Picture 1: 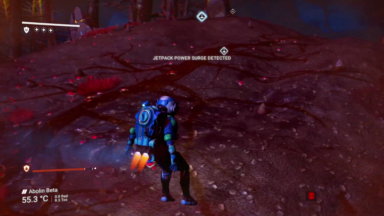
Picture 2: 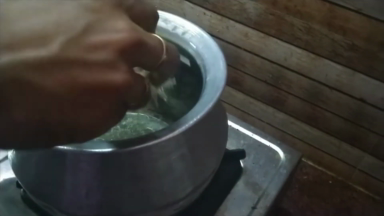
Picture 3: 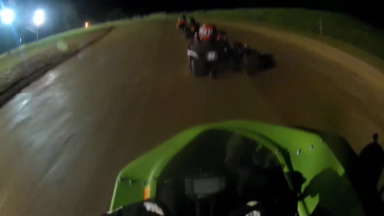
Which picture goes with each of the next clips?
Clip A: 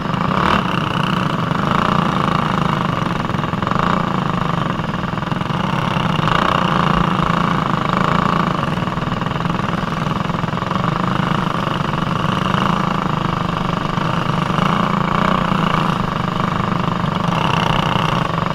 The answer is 3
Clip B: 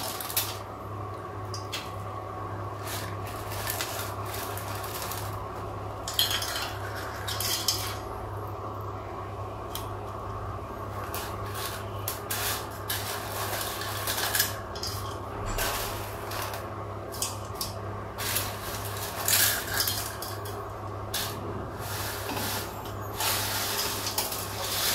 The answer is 2